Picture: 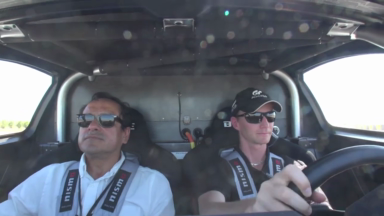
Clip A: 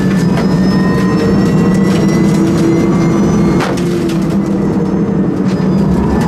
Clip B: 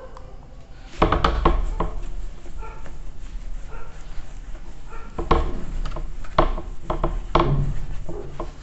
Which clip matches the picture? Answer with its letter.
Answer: A